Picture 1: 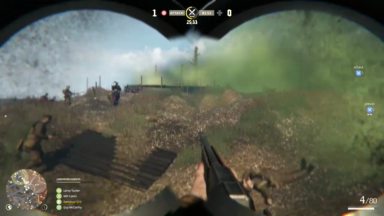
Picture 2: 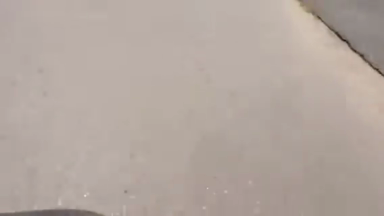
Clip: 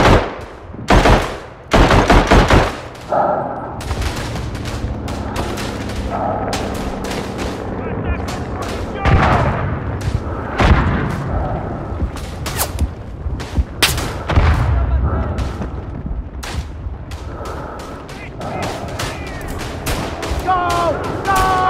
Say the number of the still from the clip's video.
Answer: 1